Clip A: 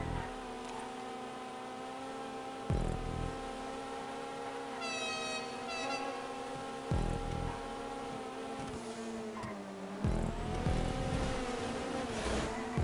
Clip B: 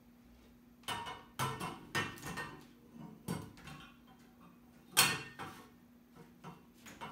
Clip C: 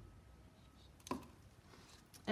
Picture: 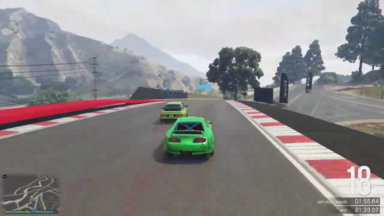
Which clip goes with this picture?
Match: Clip A